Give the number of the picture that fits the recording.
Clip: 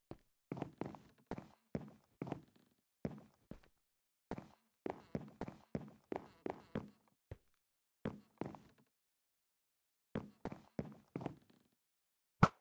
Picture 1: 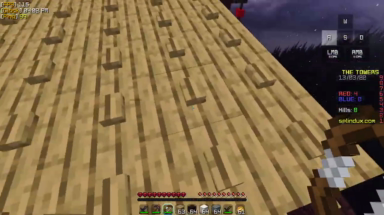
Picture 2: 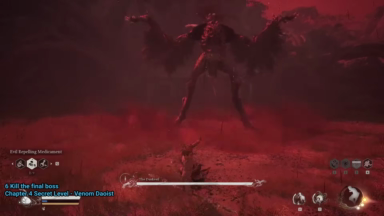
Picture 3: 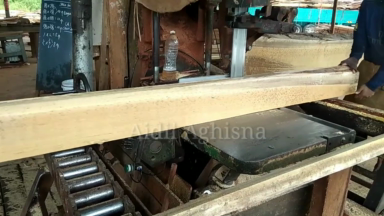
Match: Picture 1